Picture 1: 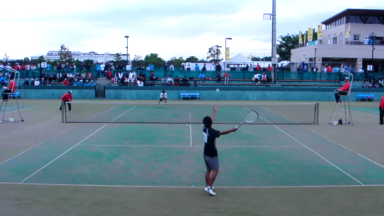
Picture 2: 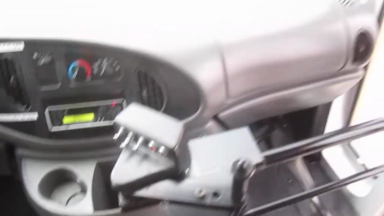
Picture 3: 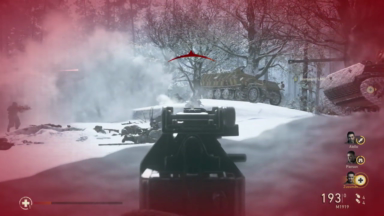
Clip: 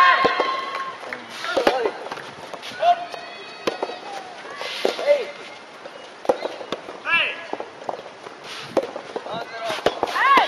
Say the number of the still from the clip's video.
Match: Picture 1